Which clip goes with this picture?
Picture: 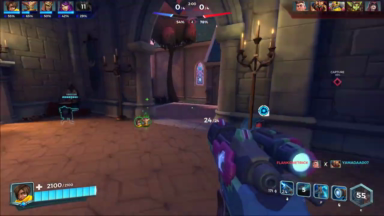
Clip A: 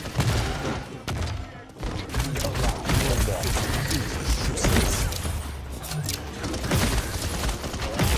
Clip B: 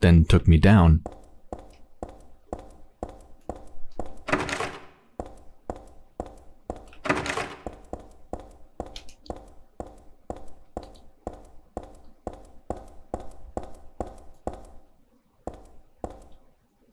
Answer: A